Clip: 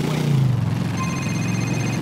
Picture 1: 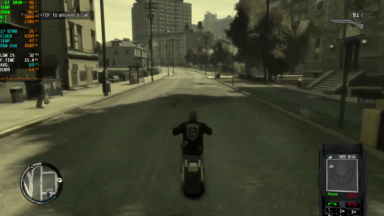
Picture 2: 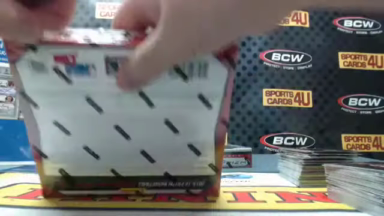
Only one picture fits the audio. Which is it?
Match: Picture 1